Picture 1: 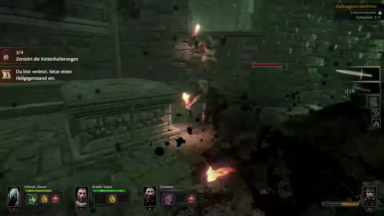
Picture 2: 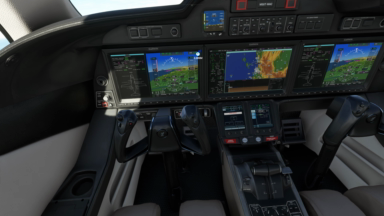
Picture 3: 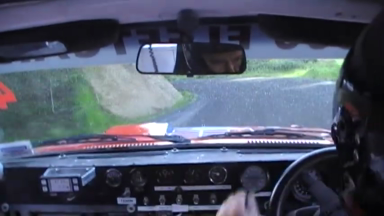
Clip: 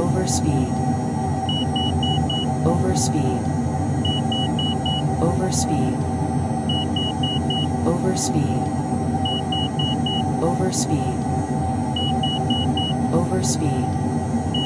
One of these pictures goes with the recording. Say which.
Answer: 2